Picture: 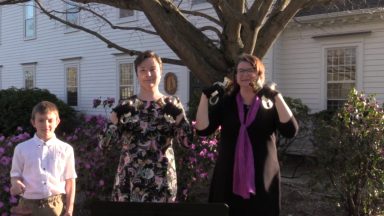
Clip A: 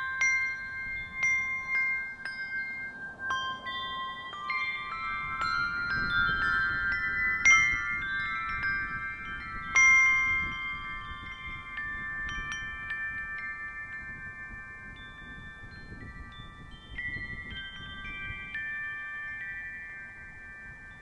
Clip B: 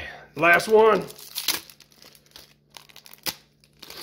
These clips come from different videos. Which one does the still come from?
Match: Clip A